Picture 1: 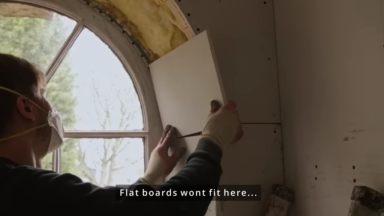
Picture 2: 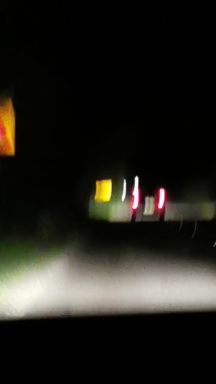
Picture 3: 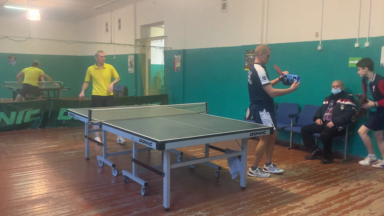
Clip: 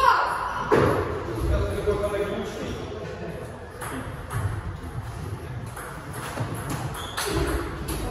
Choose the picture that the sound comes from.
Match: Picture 3